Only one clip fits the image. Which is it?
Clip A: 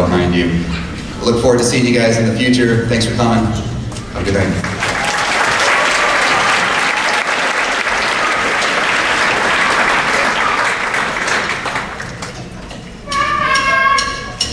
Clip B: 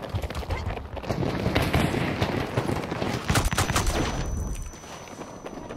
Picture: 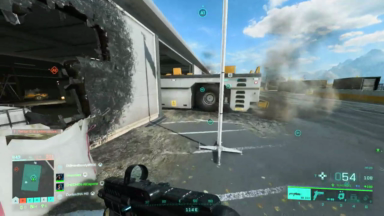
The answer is B